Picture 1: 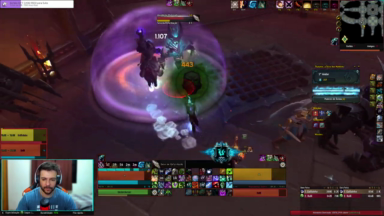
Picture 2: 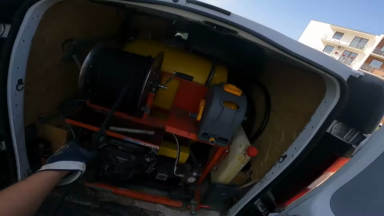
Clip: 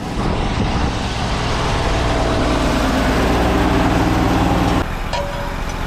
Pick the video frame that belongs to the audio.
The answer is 2